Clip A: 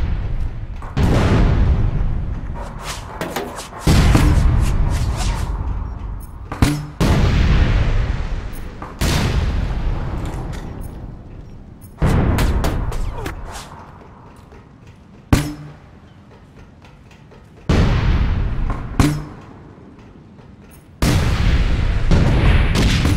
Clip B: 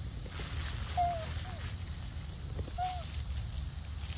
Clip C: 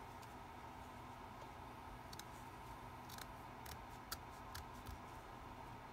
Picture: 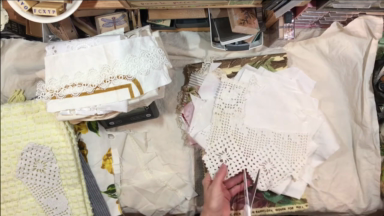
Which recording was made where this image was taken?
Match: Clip C